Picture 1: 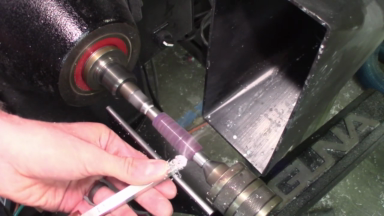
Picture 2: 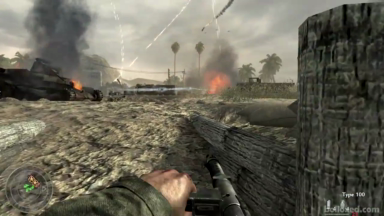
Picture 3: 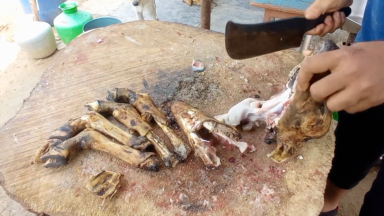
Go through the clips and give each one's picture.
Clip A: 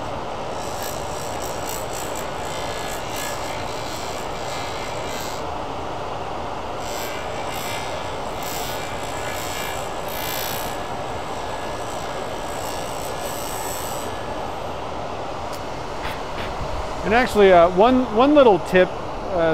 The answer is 1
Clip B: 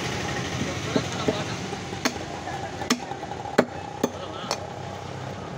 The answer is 3